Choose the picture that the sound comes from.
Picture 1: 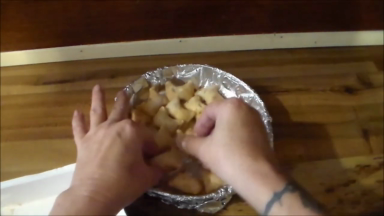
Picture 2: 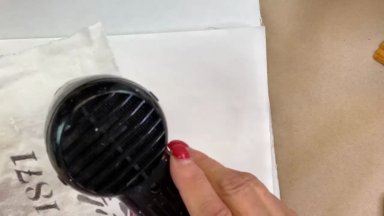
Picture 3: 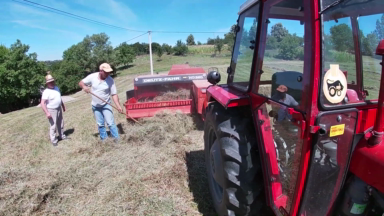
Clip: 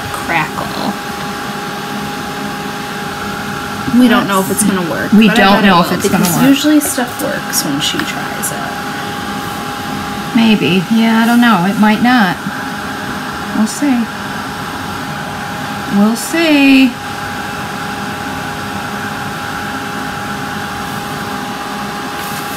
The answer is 2